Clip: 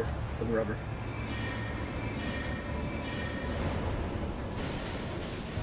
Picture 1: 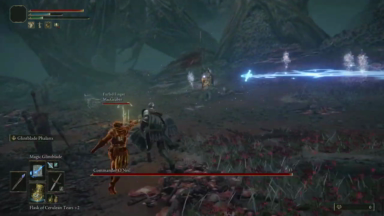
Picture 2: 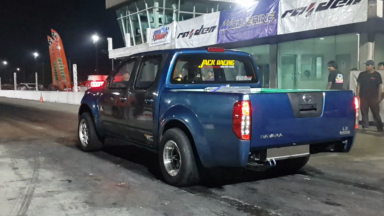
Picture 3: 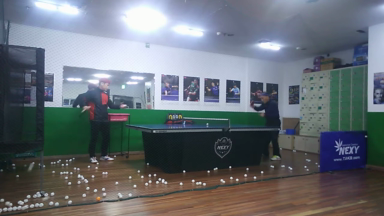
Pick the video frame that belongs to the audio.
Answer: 1